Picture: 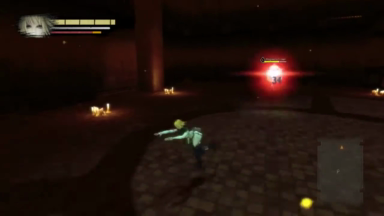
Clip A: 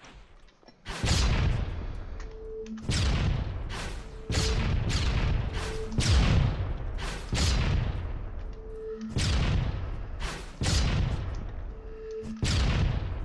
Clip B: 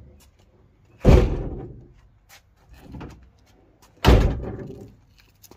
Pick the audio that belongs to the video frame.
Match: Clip A